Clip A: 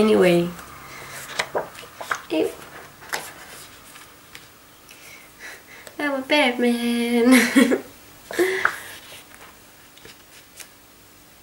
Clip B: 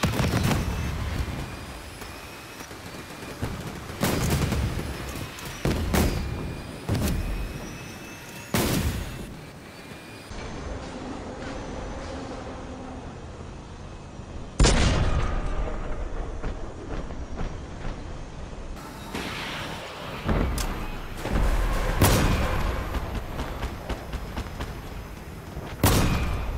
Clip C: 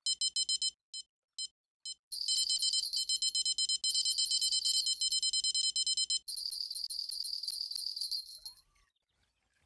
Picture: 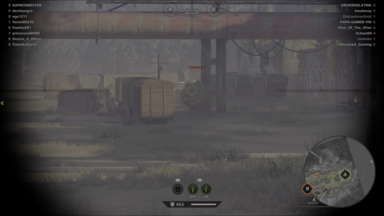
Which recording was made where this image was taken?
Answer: B